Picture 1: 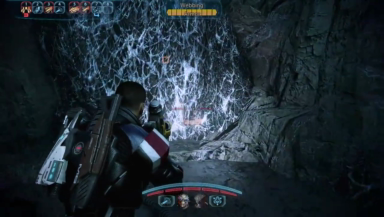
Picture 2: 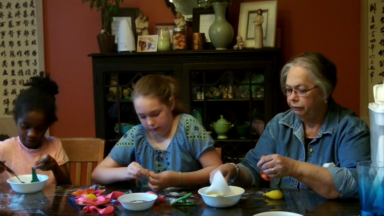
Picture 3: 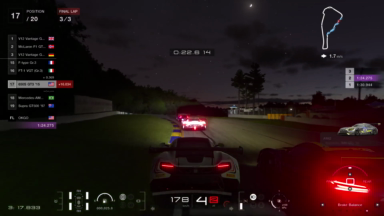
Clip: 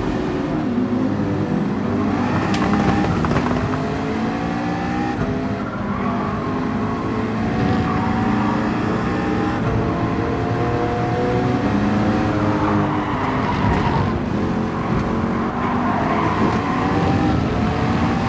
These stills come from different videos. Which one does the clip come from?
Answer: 3